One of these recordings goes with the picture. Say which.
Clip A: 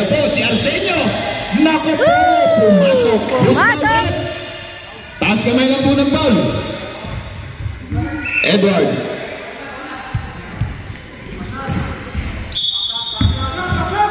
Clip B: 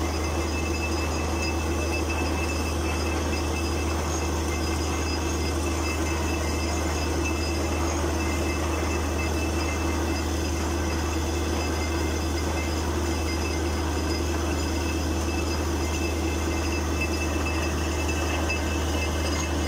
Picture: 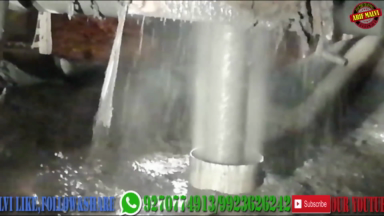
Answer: B